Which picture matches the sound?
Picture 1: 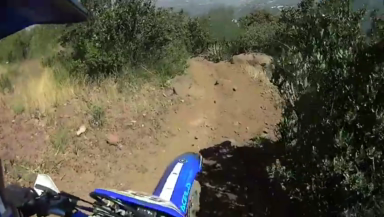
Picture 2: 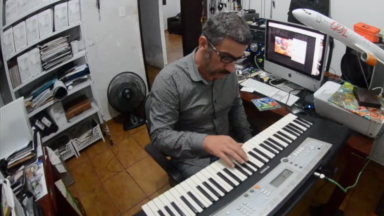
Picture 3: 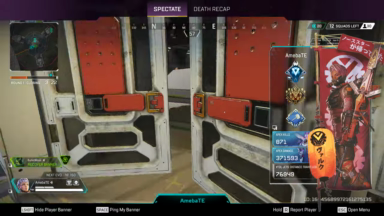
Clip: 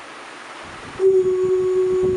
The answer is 2